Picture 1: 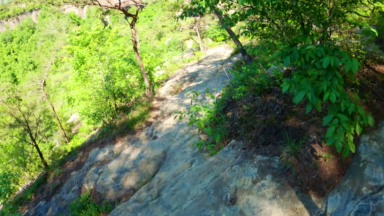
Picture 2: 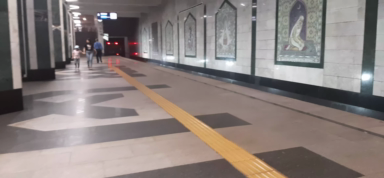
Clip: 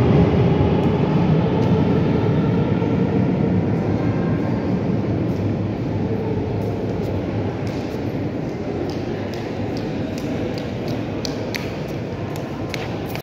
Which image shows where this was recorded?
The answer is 2